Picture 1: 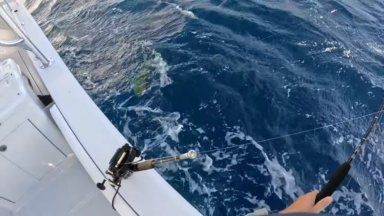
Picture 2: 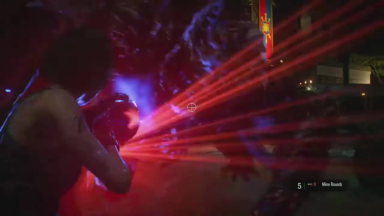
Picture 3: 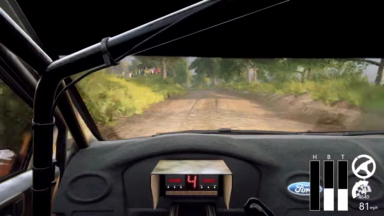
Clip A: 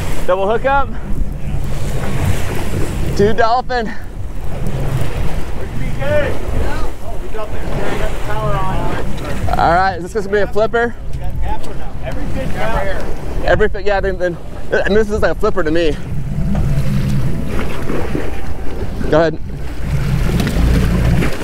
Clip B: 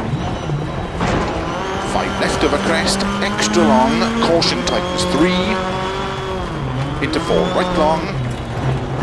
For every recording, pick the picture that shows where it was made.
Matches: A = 1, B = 3